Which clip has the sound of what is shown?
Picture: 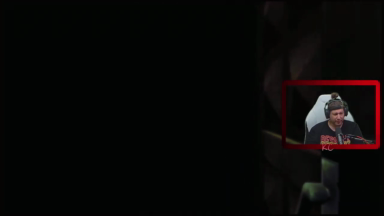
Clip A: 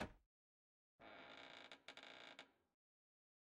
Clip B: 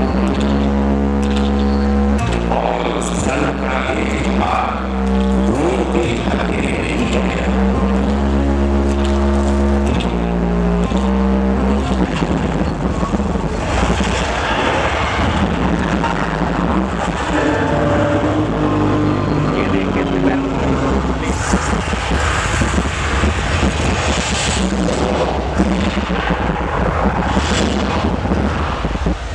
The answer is A